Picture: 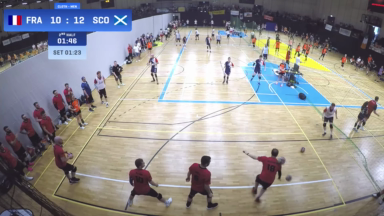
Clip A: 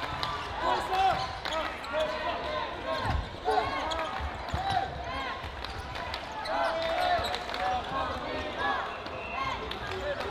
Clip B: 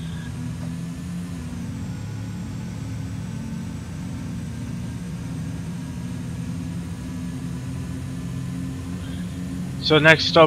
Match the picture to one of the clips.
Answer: A